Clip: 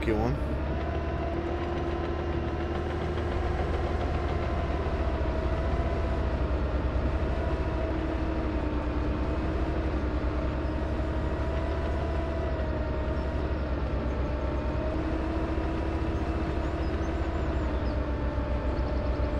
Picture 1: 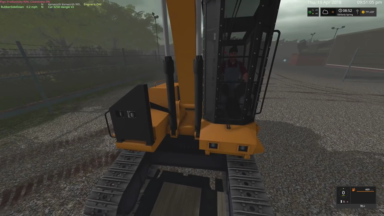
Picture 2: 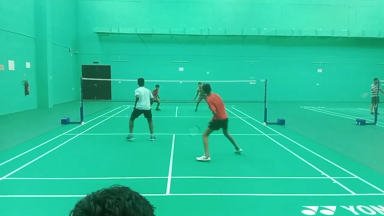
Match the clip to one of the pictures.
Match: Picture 1